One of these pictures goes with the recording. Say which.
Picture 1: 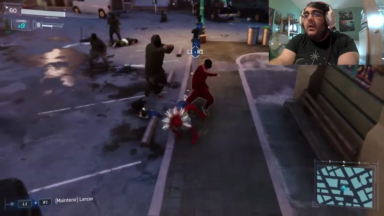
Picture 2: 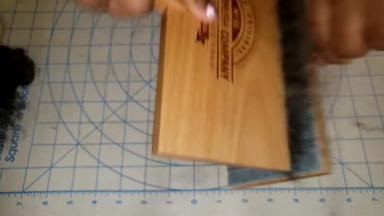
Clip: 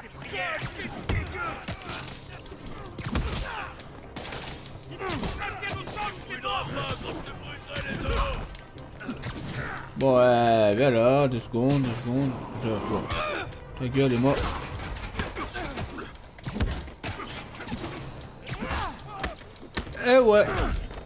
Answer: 1